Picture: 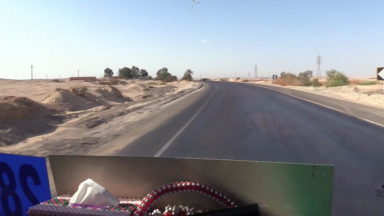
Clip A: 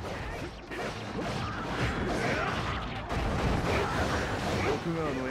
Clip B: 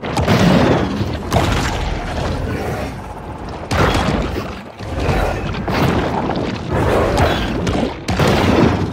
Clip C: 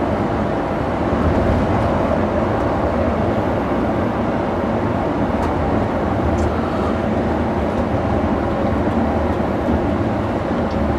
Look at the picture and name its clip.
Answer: C